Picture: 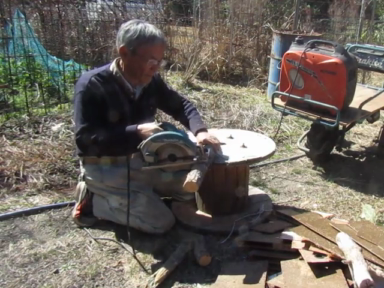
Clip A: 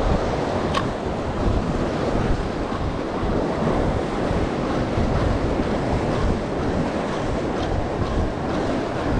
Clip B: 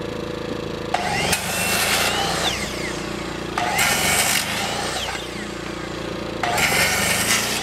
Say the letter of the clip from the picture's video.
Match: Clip B